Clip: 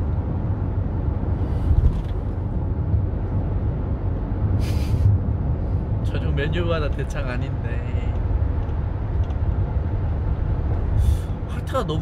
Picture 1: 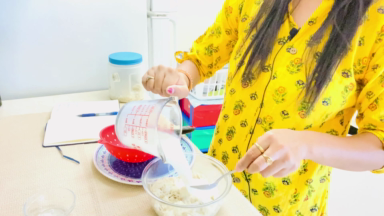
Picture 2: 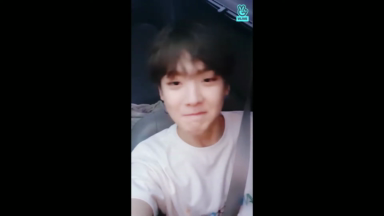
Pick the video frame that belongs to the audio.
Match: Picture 2